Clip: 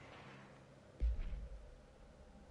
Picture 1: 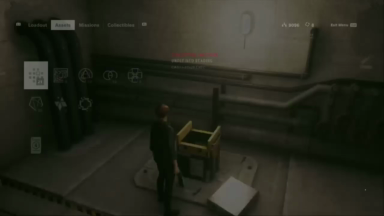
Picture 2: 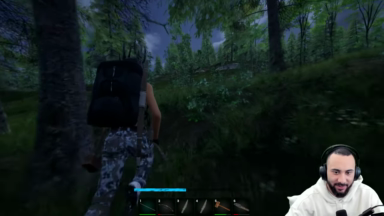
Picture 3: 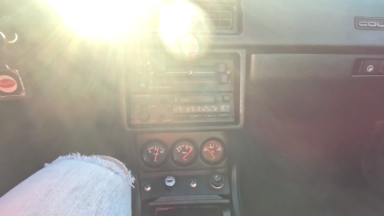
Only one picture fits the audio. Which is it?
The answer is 1